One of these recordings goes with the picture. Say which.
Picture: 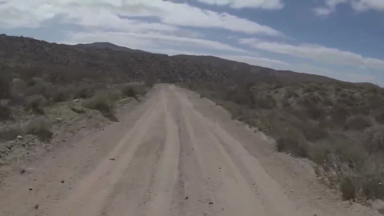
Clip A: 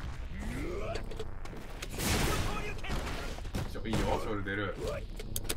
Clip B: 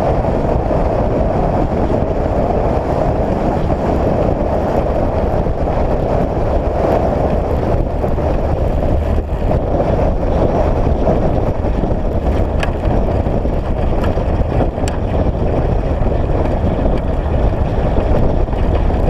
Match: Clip B